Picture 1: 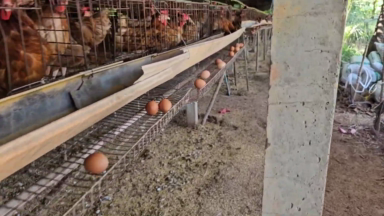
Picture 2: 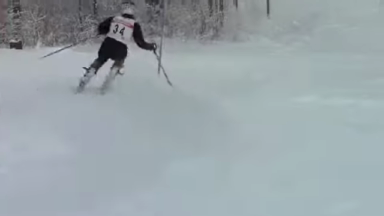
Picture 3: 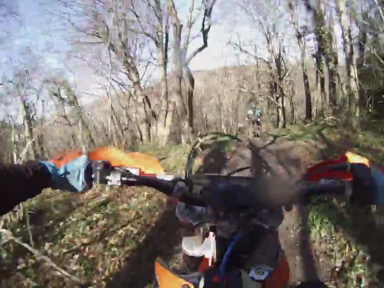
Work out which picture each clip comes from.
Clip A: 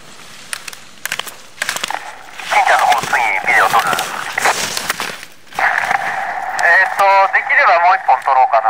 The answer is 2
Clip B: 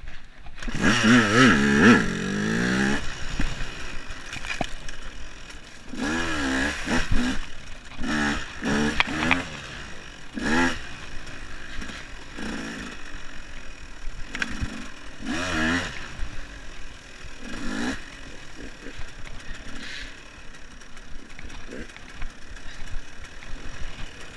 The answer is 3